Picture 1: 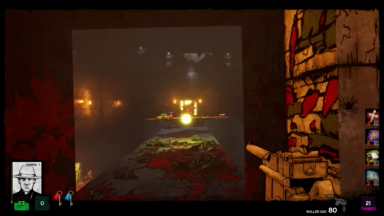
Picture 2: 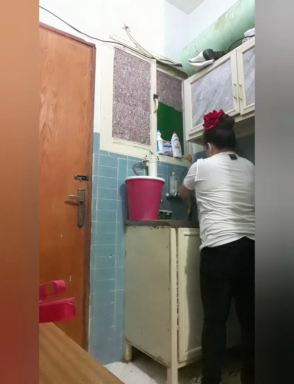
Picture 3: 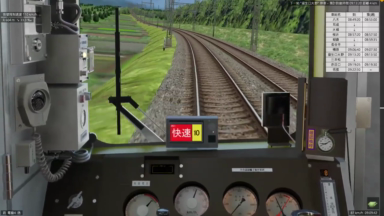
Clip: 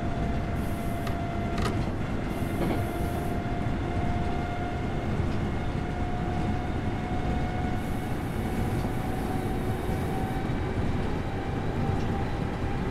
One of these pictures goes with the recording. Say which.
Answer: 3